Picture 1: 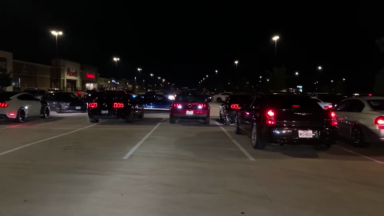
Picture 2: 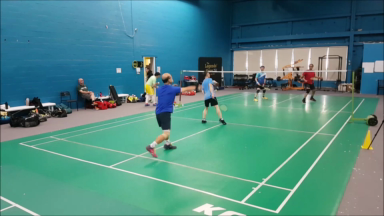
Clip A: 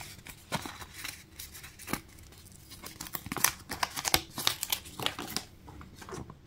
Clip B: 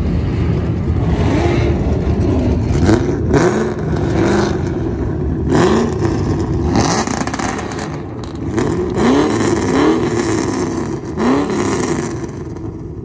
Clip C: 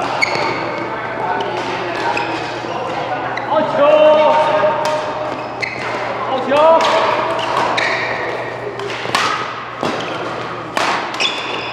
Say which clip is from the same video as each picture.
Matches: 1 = B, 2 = C